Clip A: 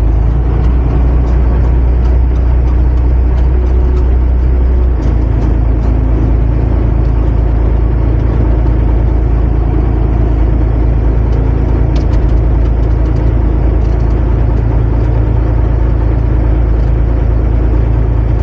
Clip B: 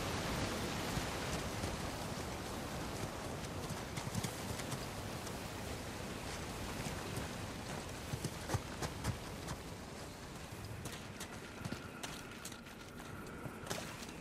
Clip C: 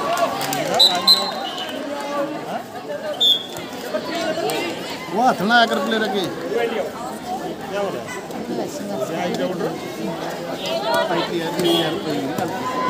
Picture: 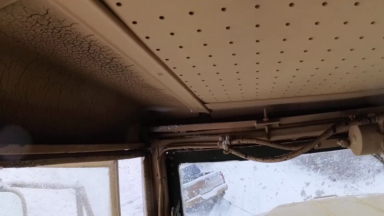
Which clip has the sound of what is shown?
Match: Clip A